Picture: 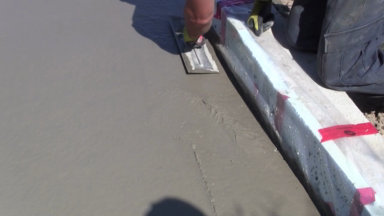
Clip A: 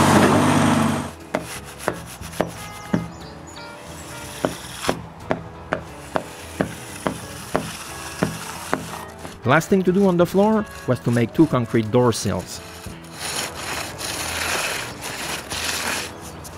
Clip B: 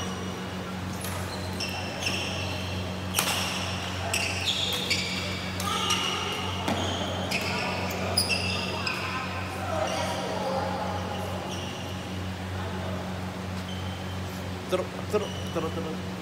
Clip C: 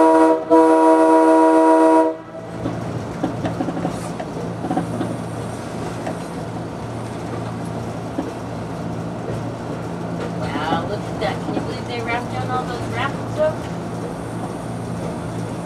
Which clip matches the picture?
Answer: A